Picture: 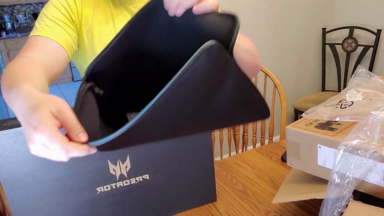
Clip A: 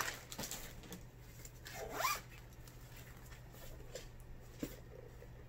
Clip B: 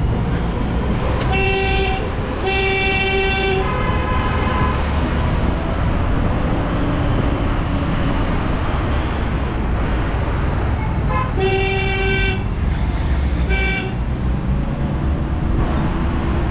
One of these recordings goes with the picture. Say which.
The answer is A